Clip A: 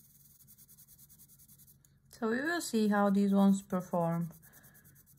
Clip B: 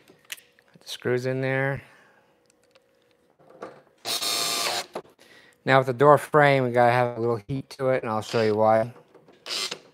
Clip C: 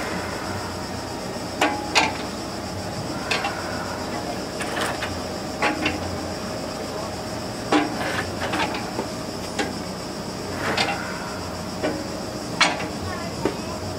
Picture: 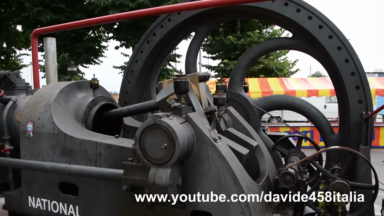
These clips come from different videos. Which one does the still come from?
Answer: C